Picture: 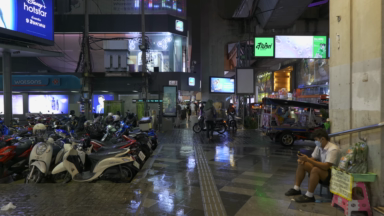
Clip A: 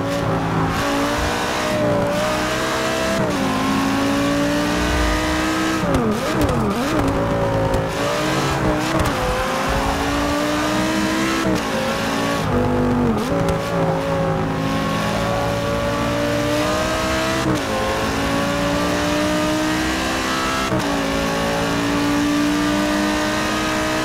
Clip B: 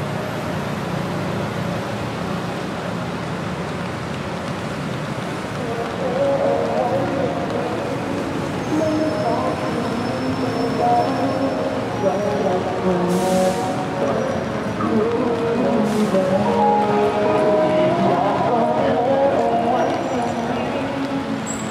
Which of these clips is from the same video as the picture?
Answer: B